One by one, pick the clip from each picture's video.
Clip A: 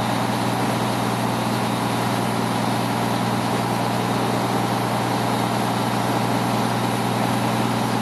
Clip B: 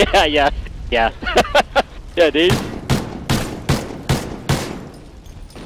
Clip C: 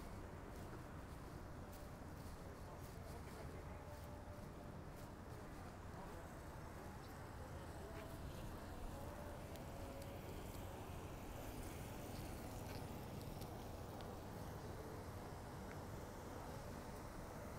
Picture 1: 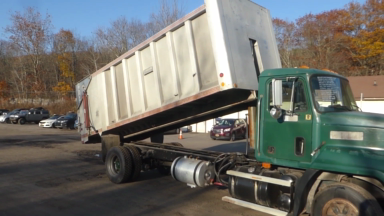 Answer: A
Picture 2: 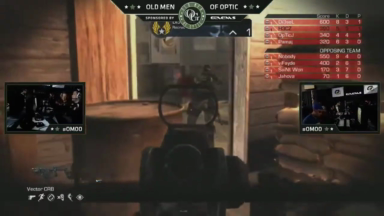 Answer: B